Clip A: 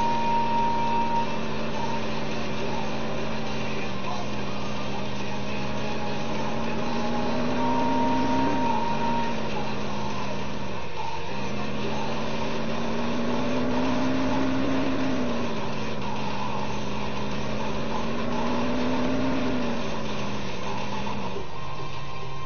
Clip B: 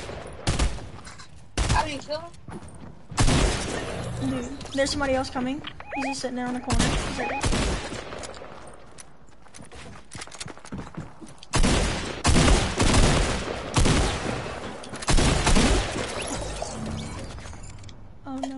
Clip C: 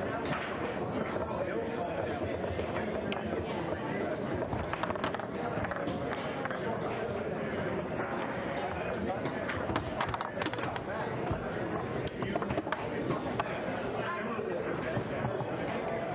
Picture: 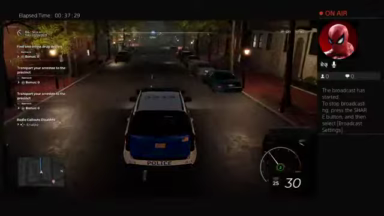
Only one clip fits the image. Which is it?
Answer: A